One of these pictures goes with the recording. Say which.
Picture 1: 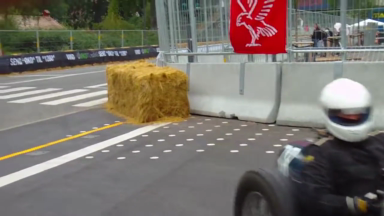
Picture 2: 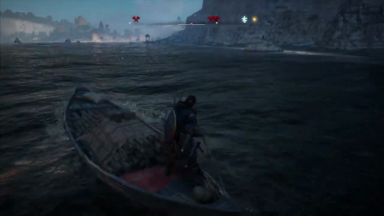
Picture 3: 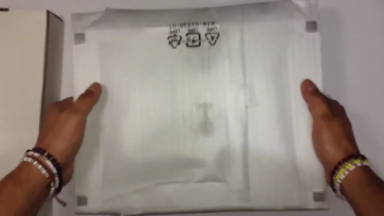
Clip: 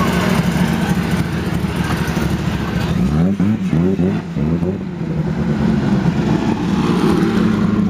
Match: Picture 1